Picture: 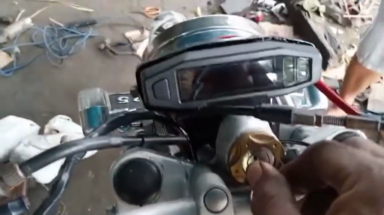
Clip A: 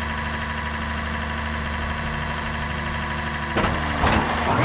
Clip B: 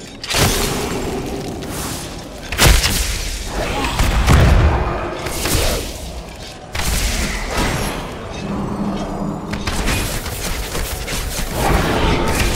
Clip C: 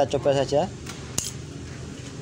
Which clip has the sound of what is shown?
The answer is C